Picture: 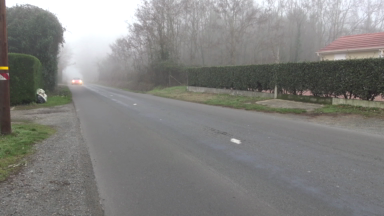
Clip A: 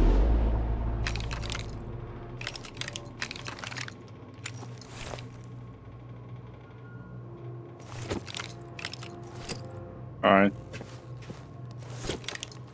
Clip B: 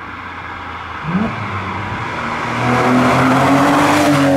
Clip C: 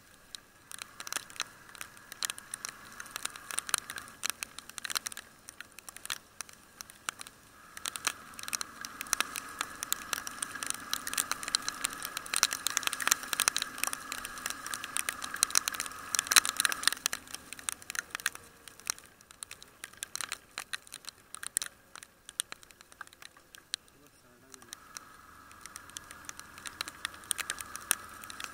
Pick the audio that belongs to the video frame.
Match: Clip B